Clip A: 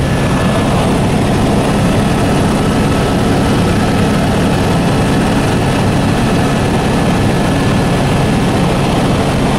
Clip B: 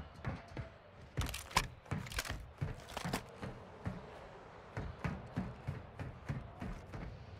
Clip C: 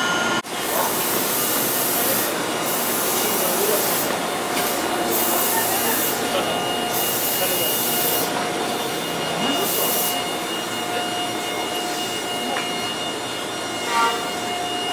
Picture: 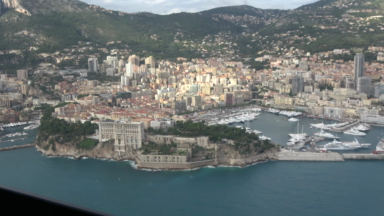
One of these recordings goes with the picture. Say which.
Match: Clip A